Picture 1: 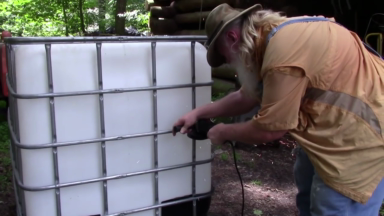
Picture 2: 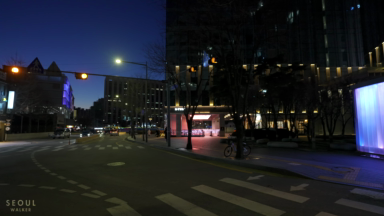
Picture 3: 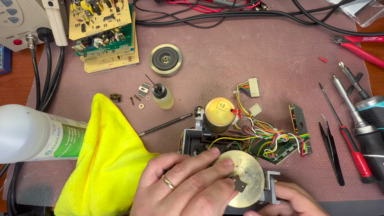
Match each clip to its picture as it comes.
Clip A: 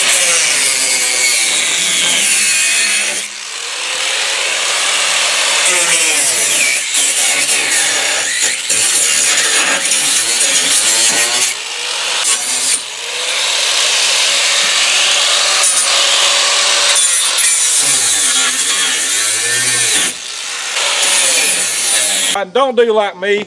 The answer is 1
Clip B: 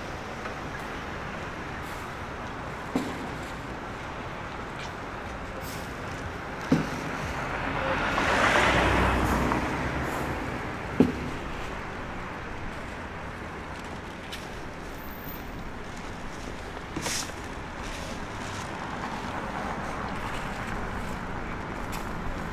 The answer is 2